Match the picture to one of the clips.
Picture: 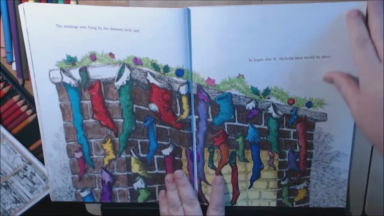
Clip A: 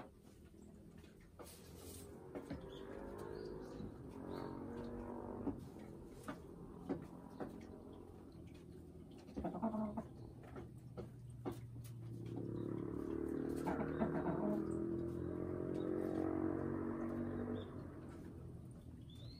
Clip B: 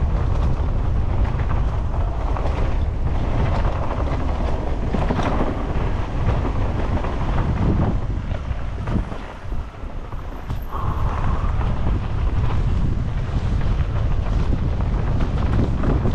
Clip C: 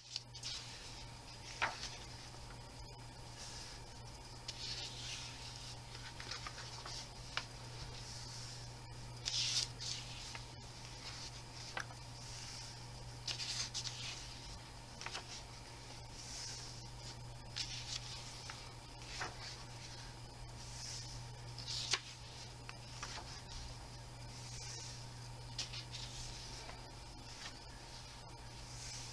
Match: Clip C